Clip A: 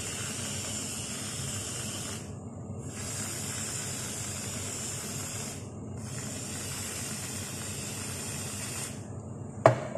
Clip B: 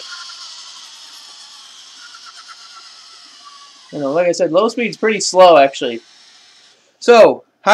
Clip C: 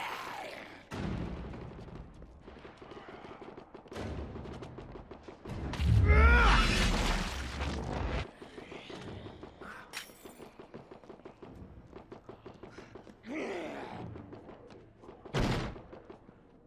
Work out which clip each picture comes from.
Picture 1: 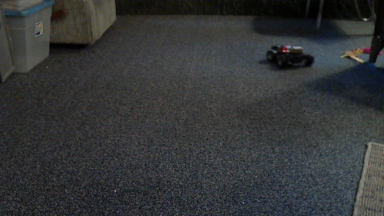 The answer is B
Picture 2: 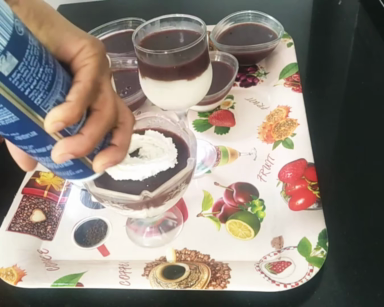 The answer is A